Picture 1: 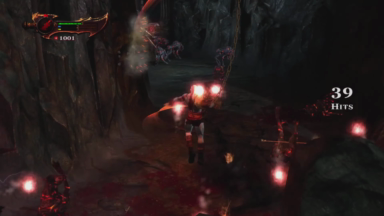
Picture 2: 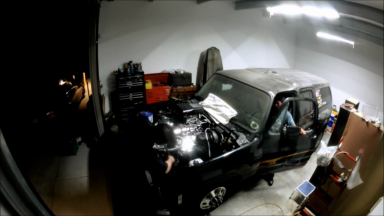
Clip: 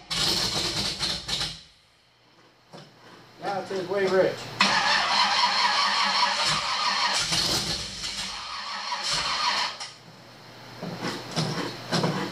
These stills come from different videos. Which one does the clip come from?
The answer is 2